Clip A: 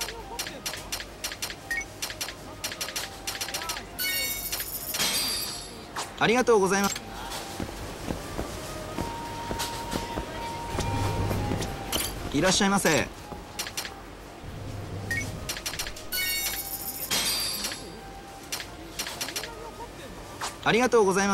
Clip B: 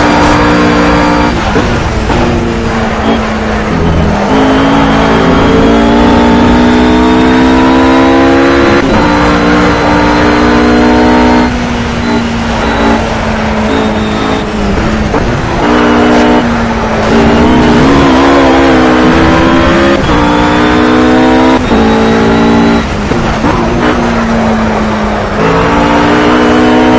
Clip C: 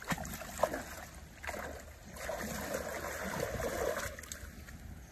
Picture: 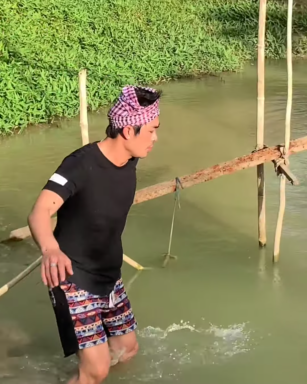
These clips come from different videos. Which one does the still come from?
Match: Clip C